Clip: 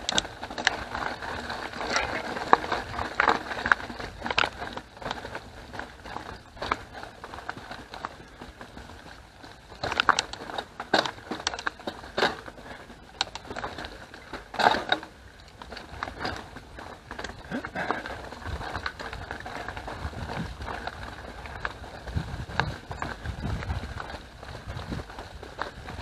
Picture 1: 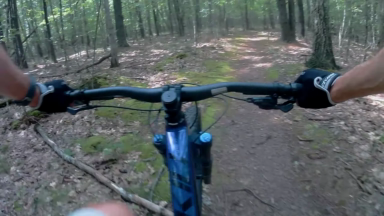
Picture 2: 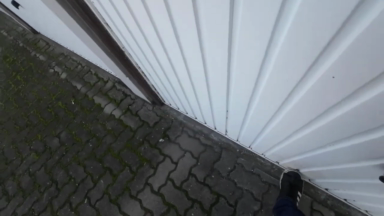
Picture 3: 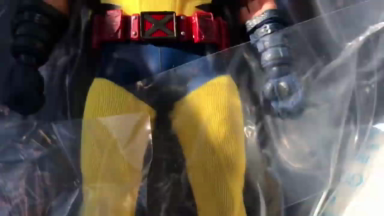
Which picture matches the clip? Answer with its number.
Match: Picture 1